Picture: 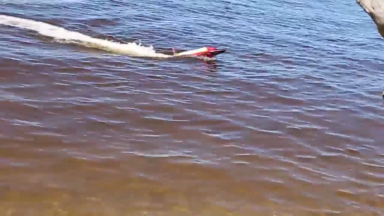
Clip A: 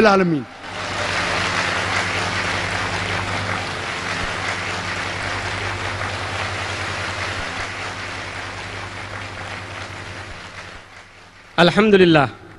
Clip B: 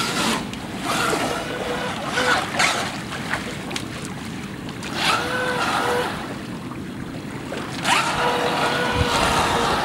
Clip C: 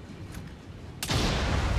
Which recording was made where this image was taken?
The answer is B